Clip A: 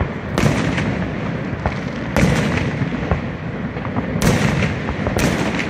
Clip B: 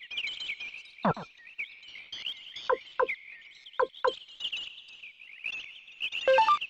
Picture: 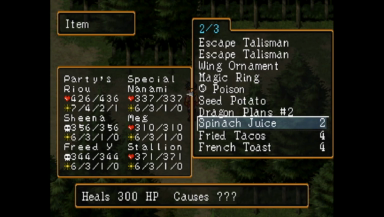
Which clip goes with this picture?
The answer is B